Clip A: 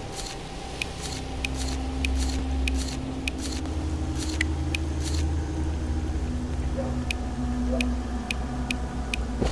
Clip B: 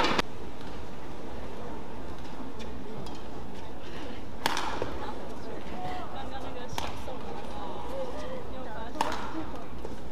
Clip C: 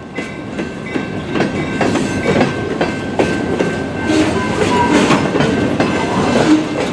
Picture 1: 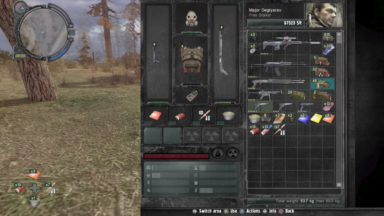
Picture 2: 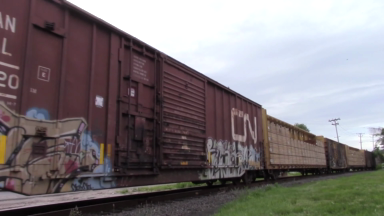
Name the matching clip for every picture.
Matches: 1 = A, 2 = C